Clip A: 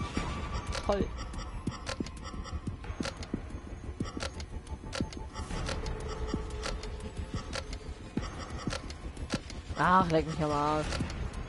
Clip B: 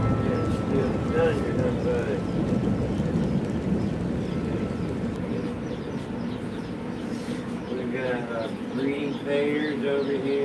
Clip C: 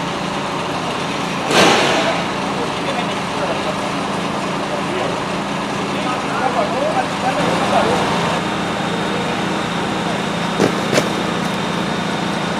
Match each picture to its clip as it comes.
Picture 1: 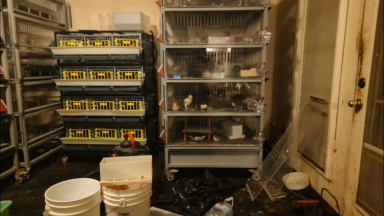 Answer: B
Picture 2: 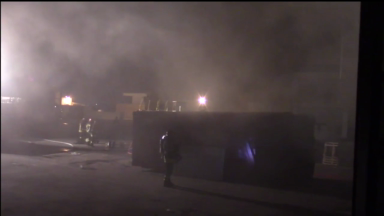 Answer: C